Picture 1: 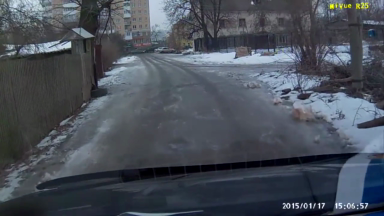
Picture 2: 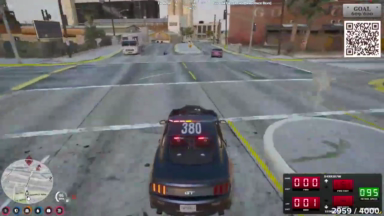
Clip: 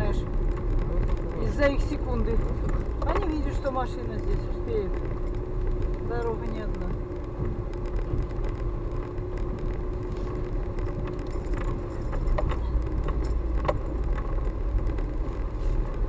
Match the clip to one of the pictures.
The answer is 1